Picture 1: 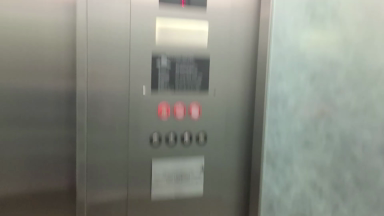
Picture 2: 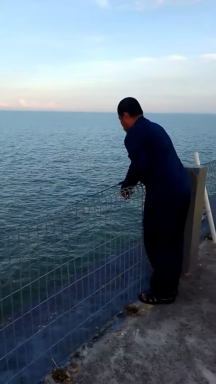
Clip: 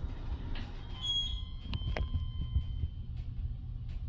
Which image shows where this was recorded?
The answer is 1